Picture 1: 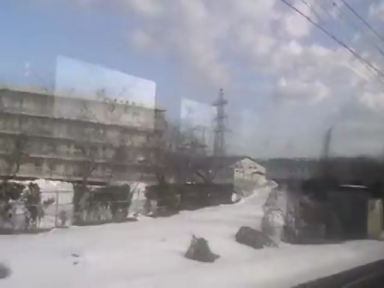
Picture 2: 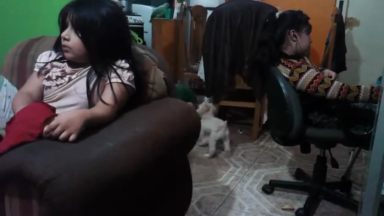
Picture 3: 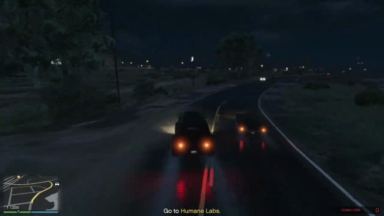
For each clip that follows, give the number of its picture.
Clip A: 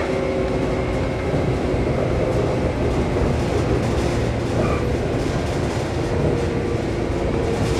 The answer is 1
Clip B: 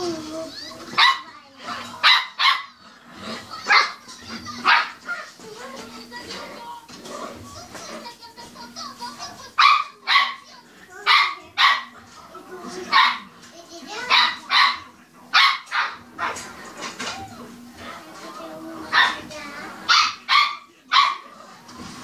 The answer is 2